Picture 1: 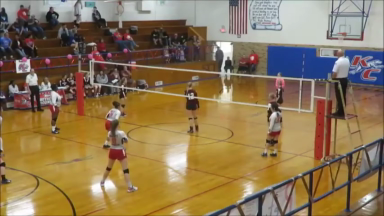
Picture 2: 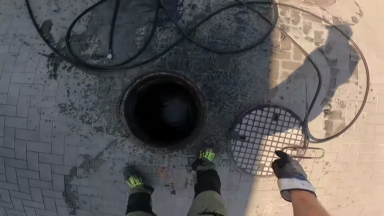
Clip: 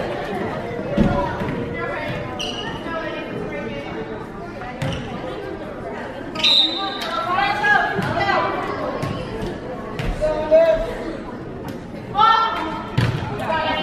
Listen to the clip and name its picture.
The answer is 1